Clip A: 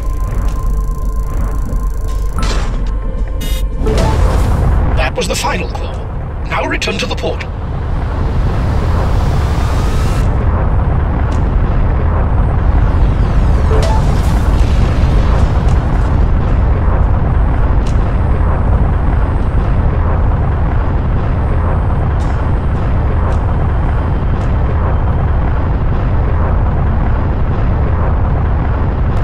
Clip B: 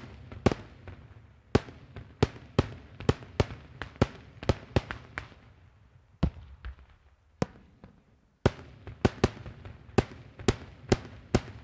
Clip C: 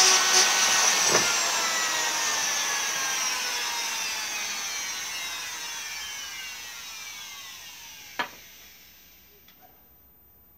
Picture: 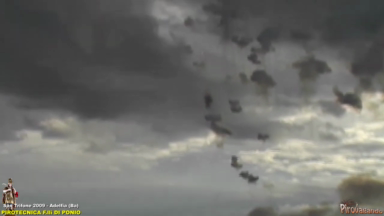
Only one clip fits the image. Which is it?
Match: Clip B